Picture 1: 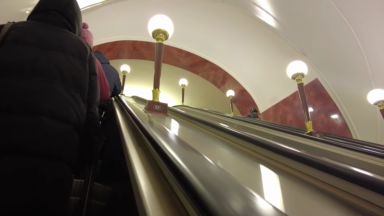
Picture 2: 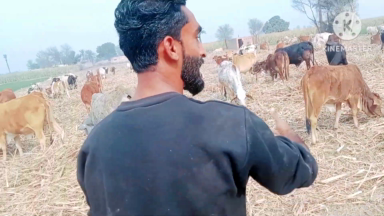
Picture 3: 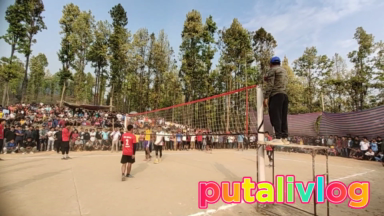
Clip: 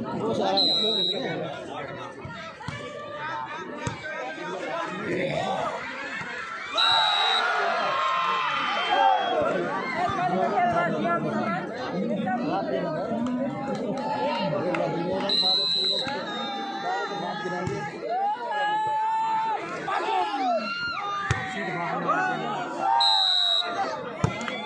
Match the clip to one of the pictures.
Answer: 3